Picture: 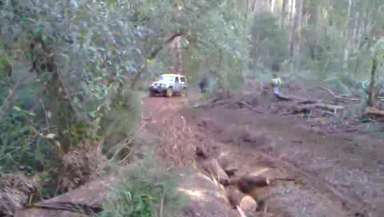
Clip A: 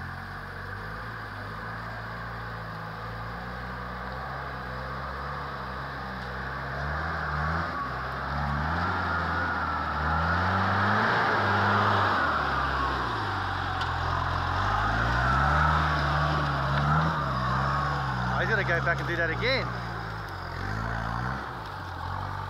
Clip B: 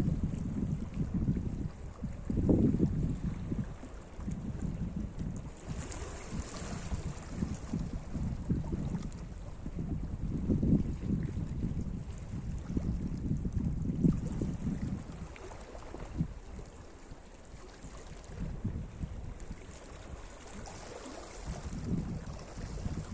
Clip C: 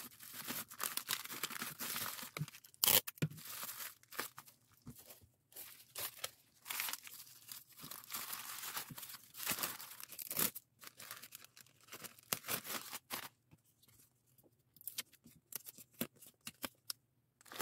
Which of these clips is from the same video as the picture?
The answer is A